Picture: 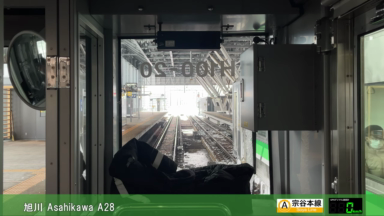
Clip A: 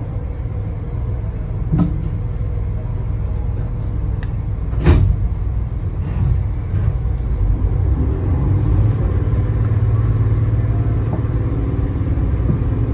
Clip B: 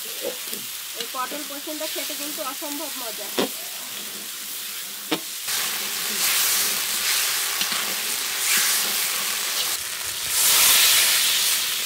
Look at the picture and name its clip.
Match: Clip A